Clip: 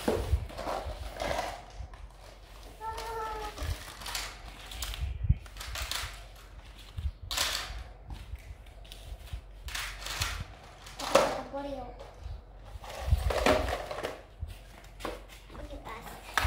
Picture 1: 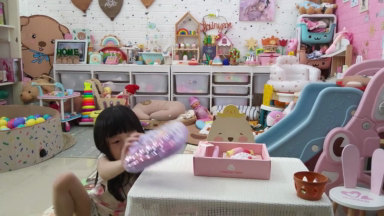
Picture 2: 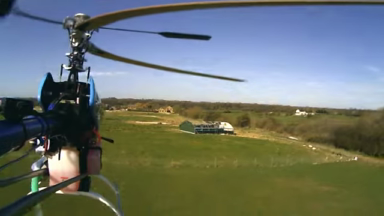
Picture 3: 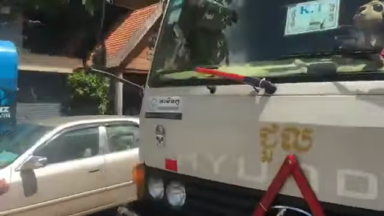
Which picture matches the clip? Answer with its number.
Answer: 1